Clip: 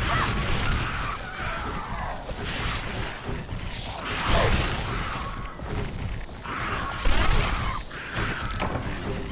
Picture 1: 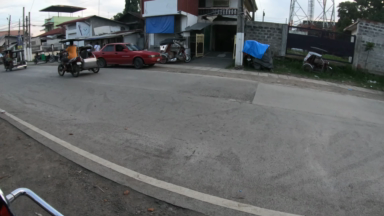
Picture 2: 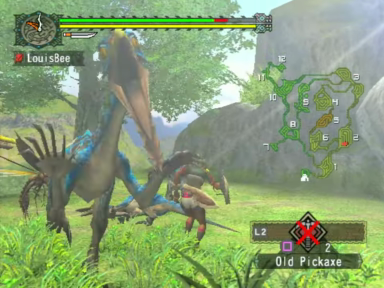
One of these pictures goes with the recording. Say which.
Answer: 2